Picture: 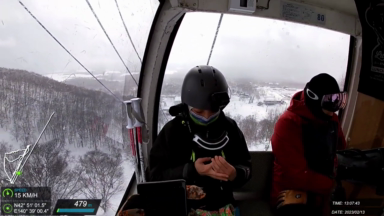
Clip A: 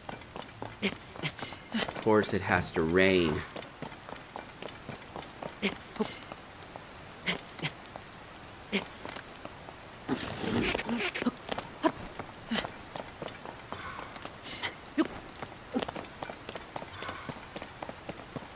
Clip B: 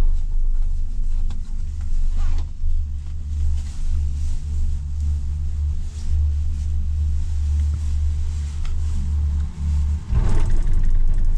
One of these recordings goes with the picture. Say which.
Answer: B